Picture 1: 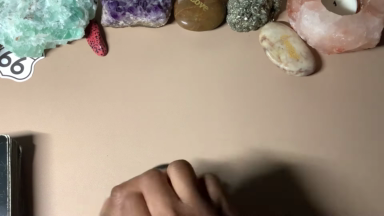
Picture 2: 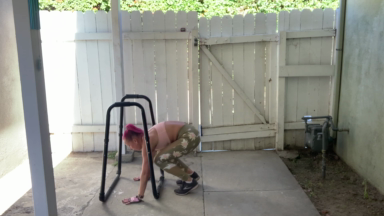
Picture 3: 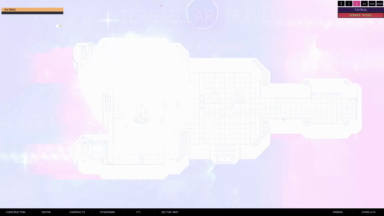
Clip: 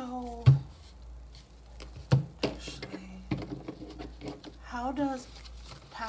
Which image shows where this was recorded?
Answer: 1